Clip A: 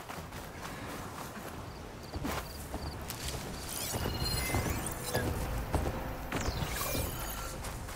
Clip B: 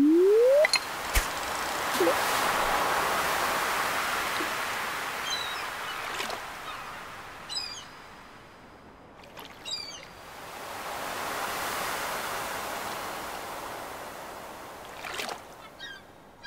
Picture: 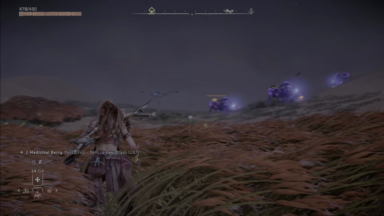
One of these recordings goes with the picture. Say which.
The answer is A